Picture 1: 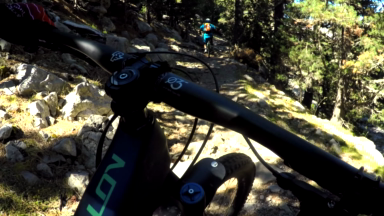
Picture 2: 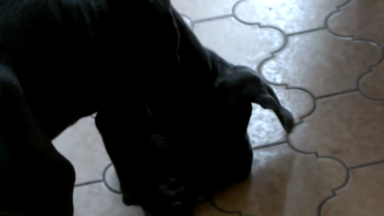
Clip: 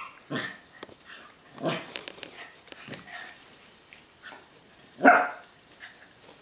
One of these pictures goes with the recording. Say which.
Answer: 2